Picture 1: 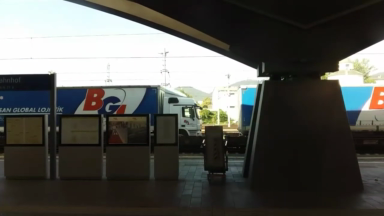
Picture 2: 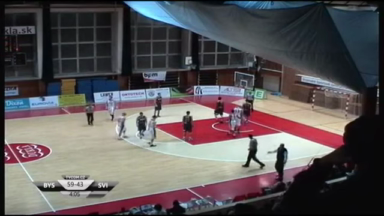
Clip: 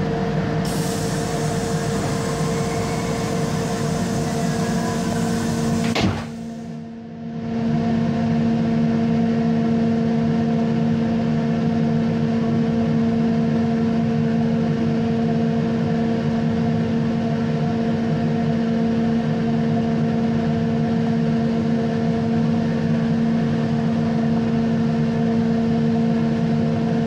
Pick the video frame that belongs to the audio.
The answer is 1